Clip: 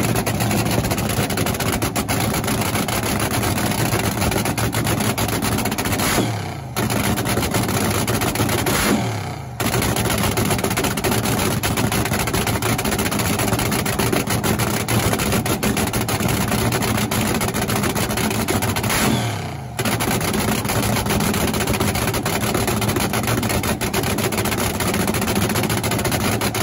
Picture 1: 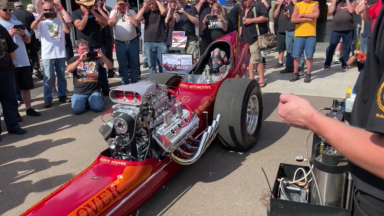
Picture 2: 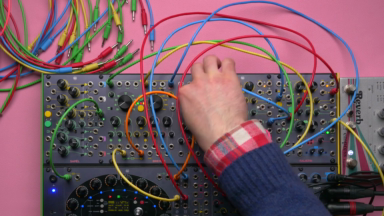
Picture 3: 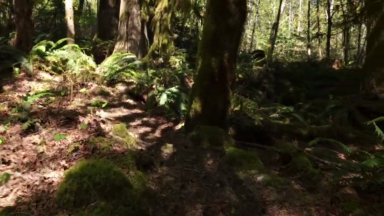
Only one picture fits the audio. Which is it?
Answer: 1